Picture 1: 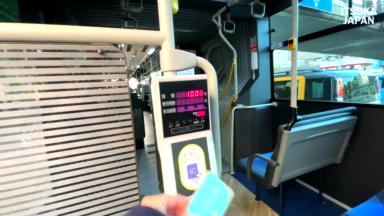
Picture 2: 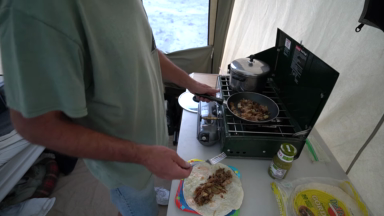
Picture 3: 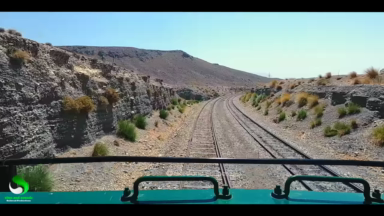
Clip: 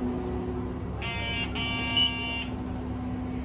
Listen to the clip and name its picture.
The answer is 1